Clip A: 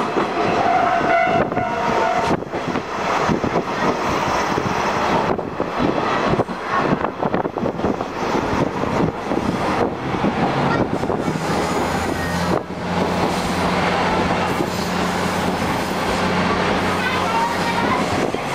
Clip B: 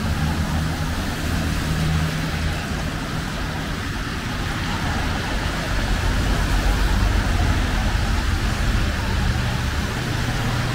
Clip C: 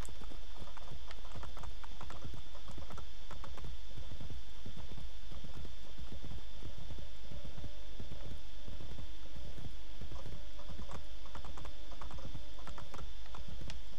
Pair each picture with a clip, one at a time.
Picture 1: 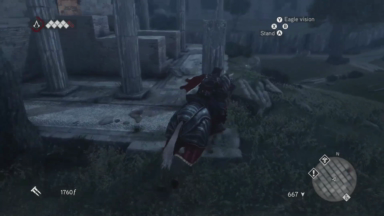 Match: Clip C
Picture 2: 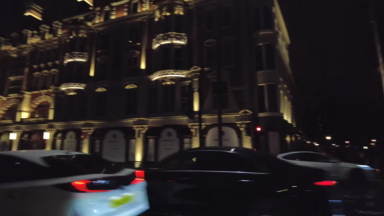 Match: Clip B